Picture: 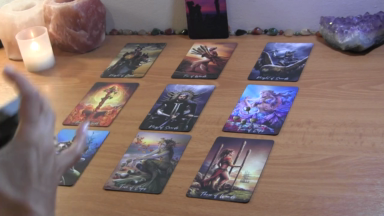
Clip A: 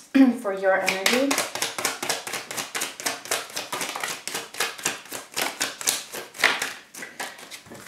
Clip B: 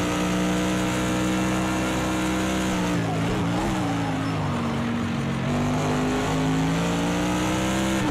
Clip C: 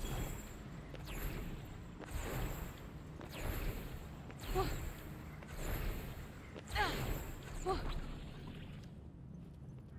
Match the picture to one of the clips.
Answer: A